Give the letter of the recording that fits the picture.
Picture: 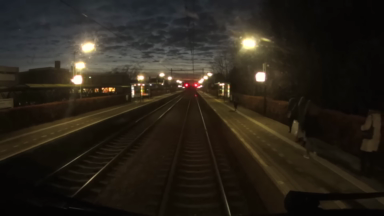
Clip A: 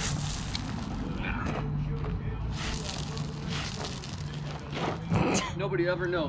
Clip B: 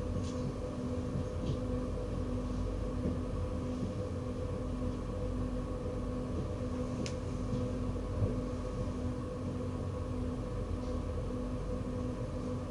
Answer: B